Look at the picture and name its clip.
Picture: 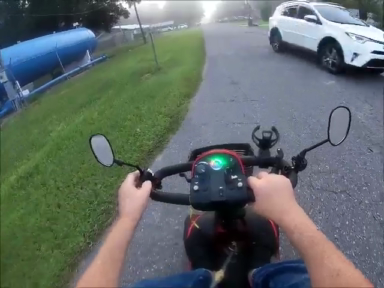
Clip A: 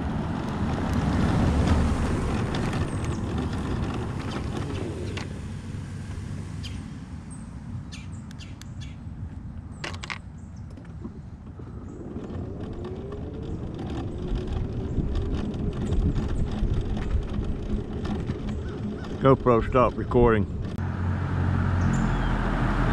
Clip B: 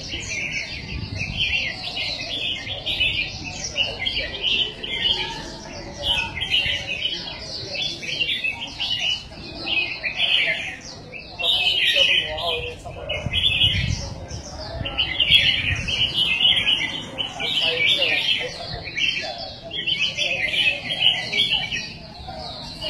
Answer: A